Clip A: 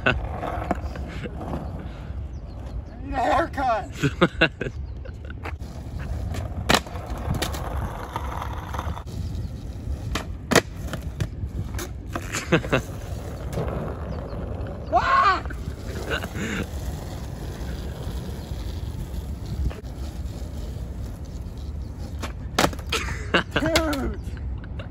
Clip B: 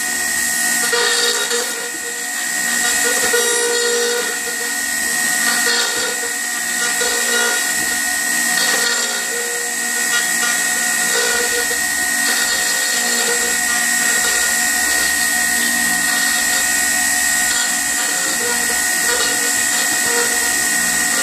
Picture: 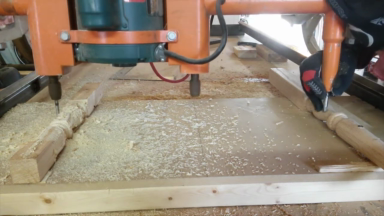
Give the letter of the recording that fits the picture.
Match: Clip B